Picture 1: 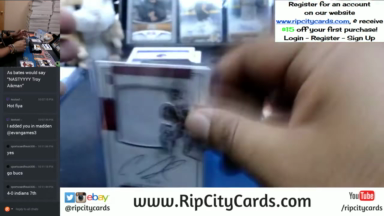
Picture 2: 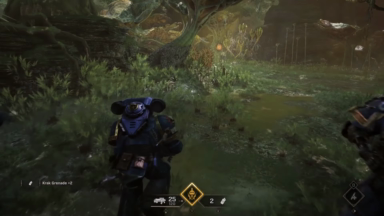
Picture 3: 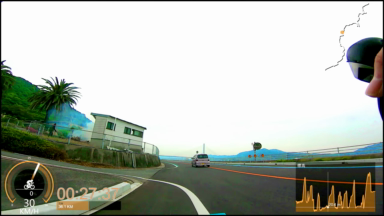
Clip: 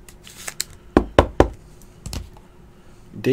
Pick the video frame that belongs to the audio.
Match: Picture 1